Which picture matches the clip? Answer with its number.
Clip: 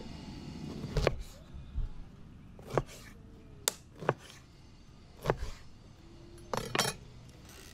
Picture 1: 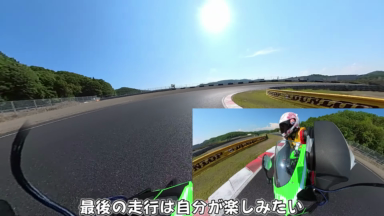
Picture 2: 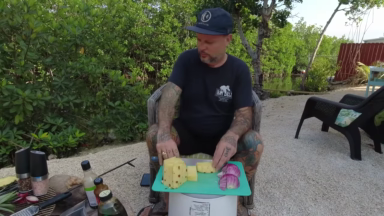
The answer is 2